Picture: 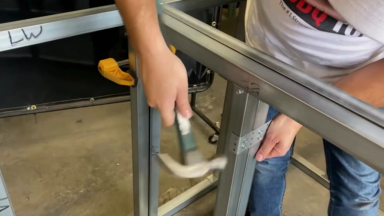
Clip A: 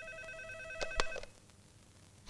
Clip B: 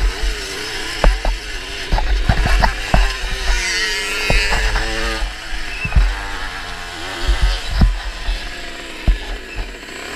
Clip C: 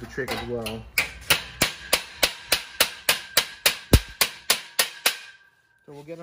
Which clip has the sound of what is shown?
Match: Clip C